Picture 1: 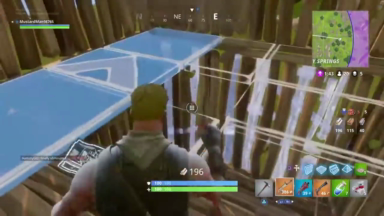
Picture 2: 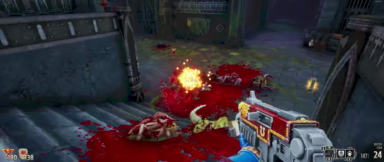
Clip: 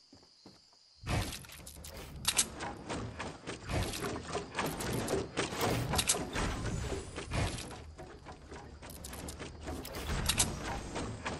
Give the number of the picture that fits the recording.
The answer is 1